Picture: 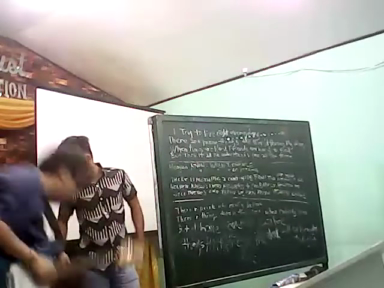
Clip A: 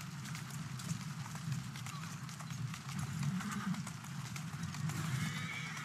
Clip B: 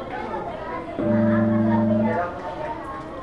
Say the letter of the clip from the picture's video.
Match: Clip B